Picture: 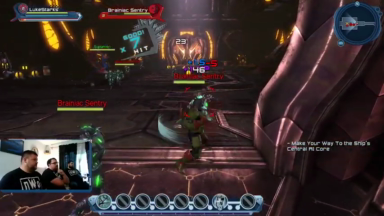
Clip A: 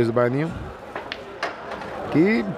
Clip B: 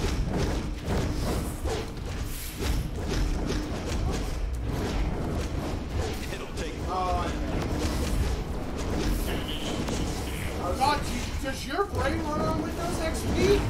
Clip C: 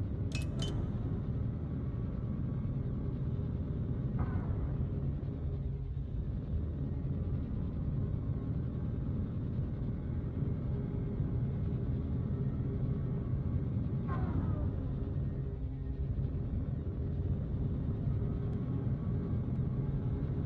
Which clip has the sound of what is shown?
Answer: B